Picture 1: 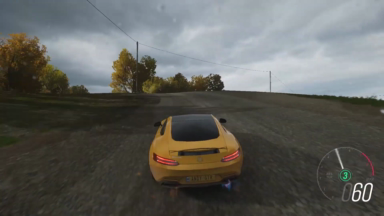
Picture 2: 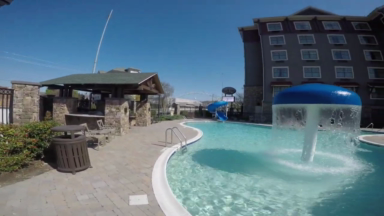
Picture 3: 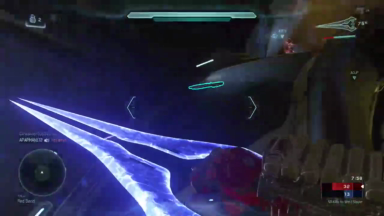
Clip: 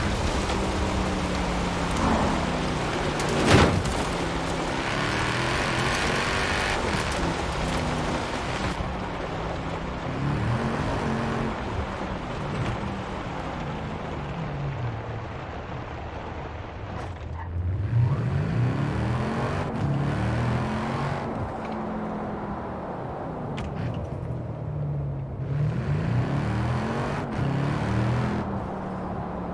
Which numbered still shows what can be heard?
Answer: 1